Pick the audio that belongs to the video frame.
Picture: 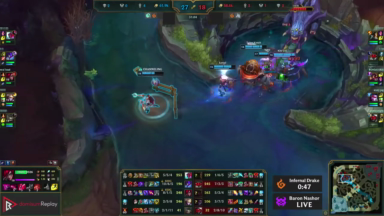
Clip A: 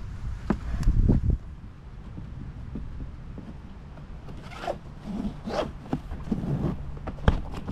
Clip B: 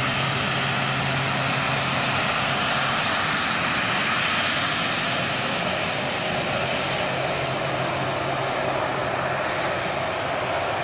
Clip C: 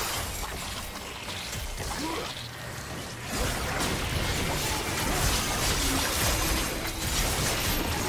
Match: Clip C